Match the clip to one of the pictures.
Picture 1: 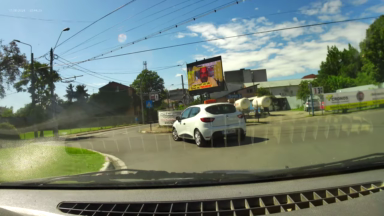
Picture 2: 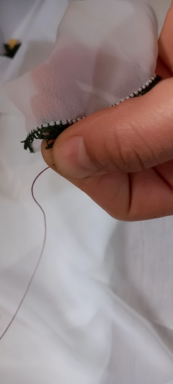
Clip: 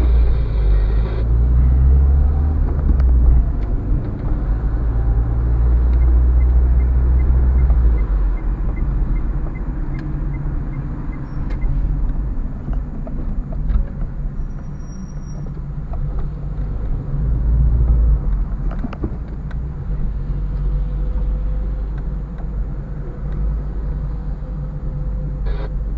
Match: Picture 1